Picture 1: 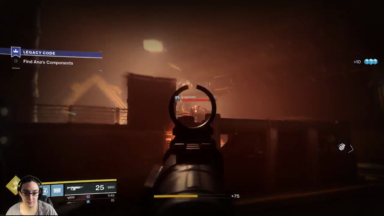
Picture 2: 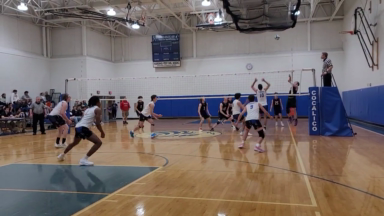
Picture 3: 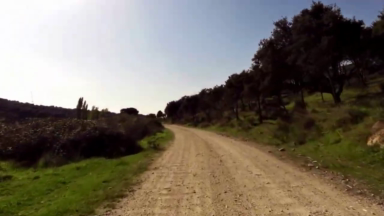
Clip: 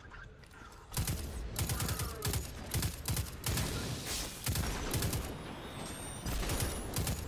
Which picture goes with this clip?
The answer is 1